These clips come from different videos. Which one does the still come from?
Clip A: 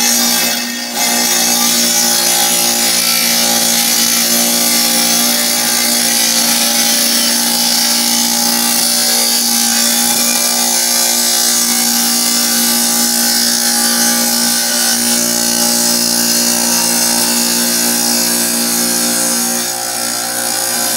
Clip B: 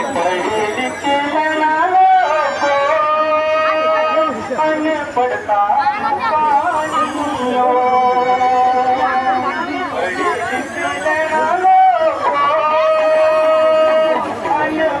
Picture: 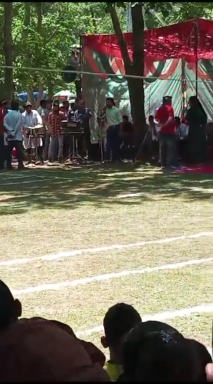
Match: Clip B